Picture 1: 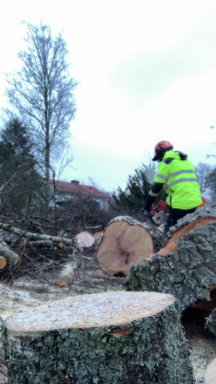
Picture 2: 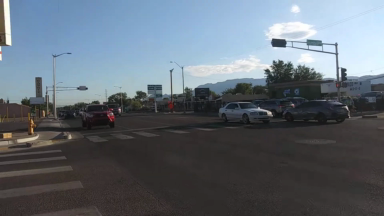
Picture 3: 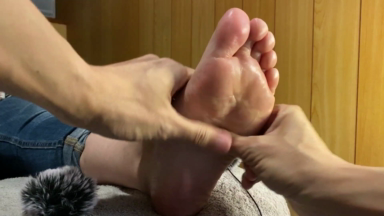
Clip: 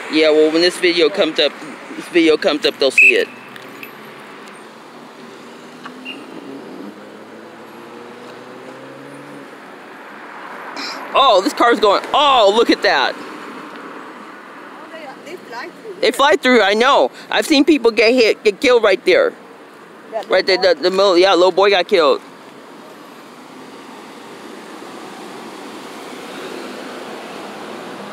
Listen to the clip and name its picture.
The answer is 2